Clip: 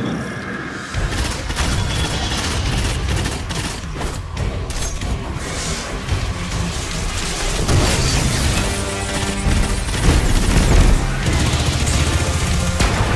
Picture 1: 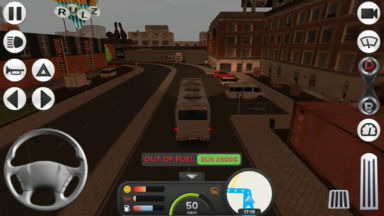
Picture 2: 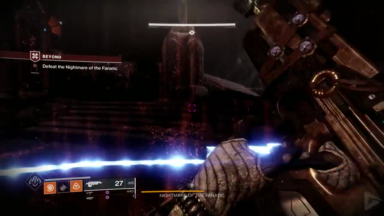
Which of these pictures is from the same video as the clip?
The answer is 2